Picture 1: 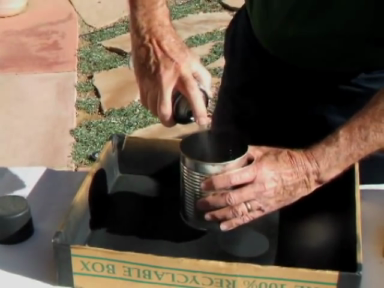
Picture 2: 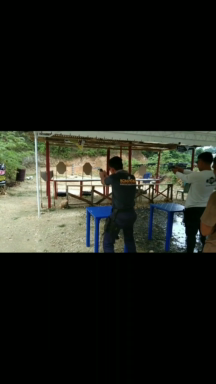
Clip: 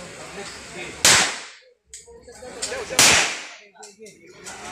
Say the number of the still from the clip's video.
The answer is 2